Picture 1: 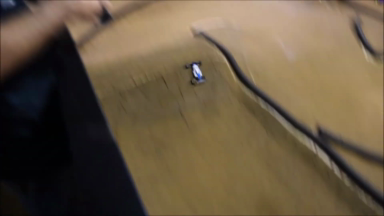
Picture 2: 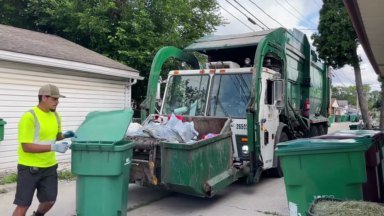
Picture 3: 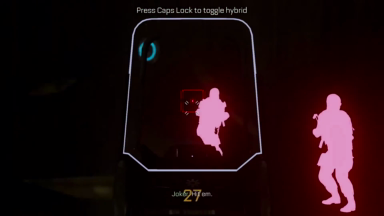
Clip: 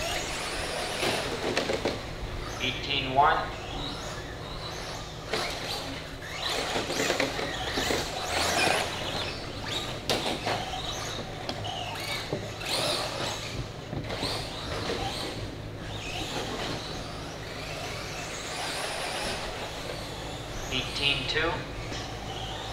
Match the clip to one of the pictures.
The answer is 1